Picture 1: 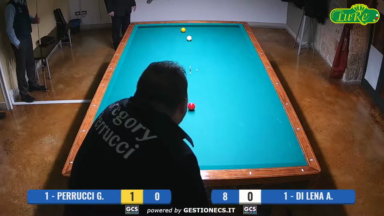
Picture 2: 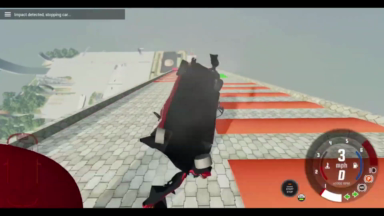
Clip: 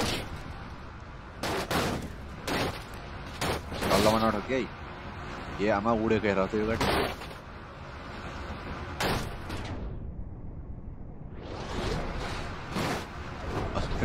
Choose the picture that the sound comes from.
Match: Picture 2